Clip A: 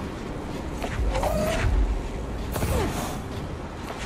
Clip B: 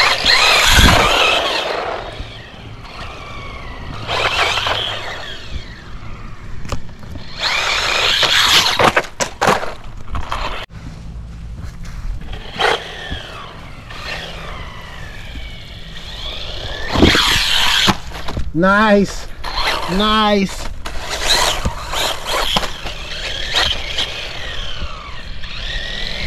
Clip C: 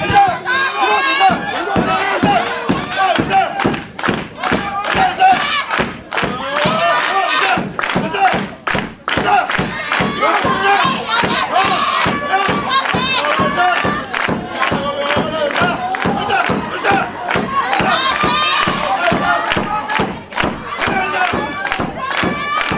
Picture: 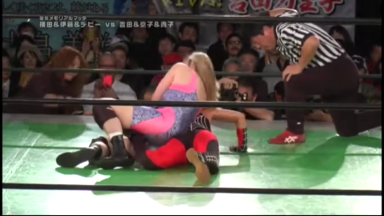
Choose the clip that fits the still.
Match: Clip C